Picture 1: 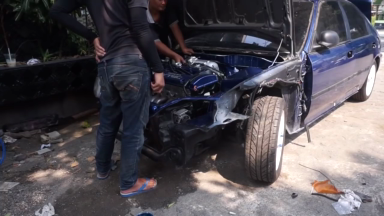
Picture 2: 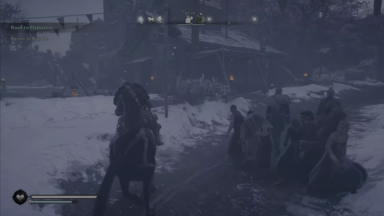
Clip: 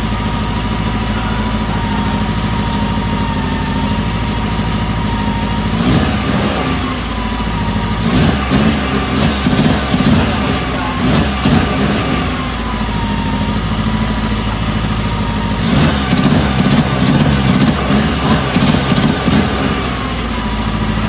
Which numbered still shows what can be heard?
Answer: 1